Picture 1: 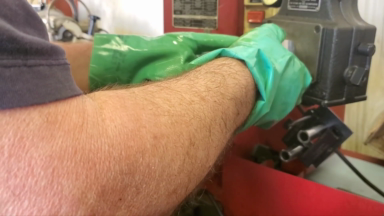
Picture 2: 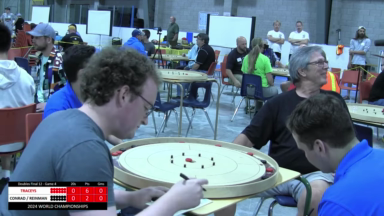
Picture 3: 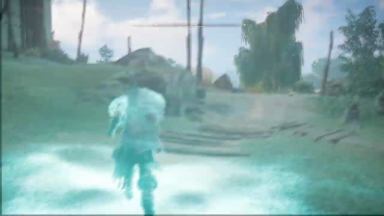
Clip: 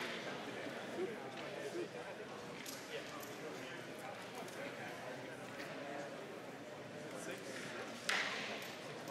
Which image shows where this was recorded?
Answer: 2